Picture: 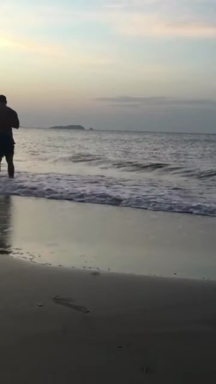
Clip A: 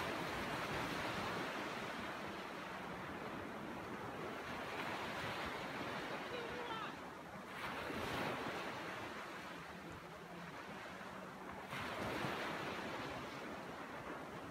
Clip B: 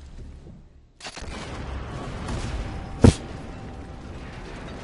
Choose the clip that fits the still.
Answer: A